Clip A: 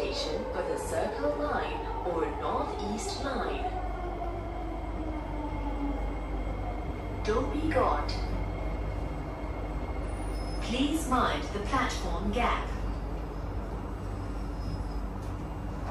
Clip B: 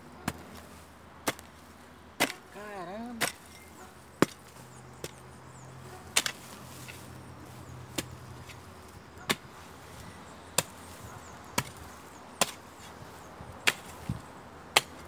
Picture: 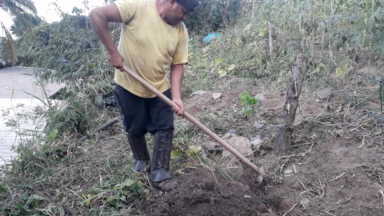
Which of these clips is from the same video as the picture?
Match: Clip B